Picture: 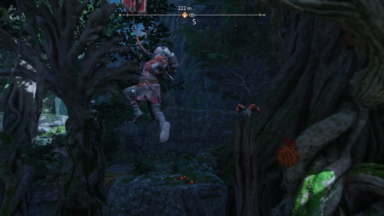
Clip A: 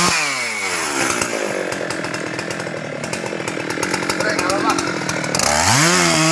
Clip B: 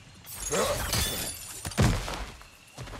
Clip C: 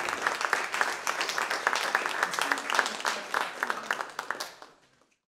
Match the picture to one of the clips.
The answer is B